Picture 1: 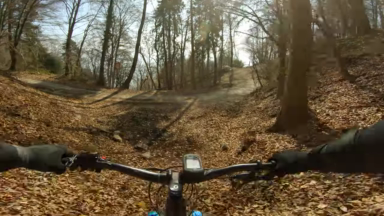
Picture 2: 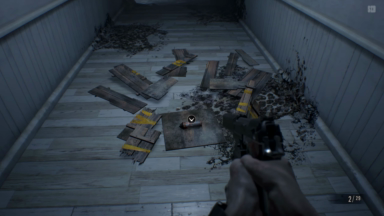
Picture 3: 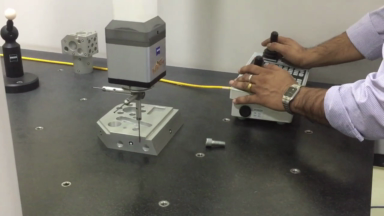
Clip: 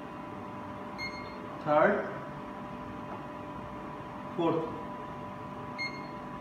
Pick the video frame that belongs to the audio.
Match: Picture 3